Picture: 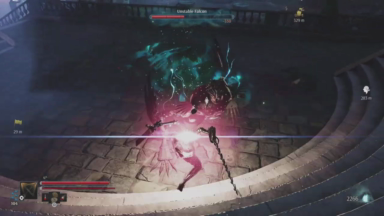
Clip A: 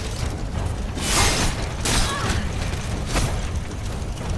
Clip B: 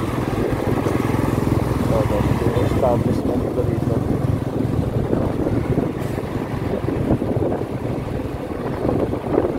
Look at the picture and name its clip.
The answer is A